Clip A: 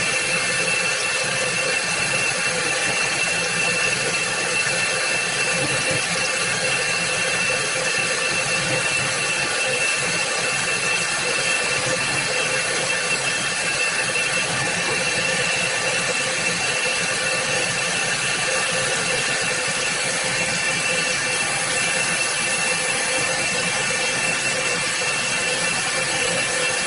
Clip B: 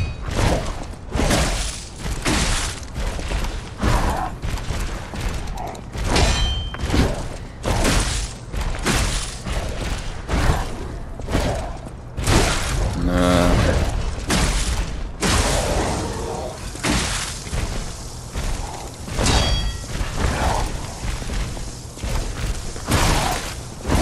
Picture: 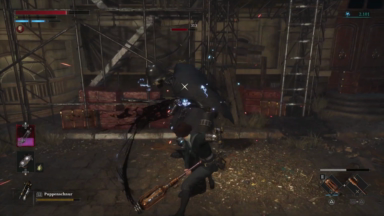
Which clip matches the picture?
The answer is B